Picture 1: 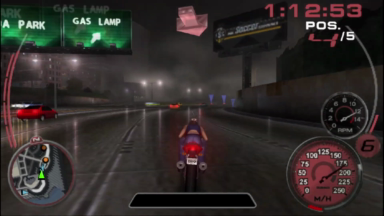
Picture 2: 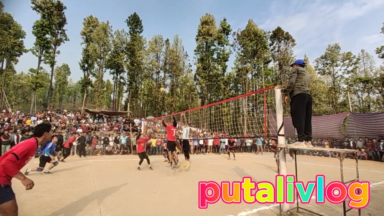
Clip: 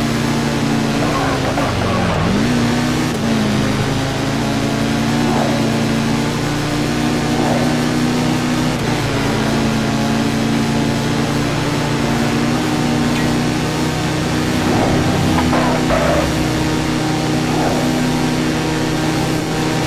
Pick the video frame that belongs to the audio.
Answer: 1